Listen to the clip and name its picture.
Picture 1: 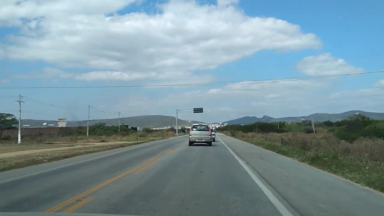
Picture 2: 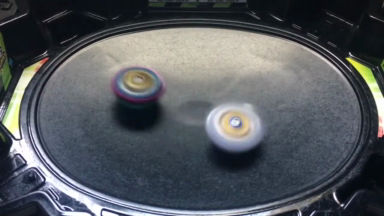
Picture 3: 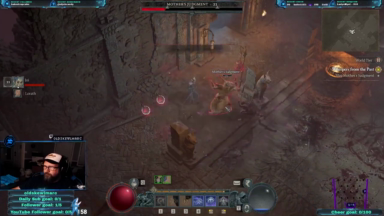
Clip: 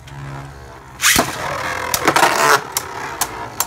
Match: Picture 2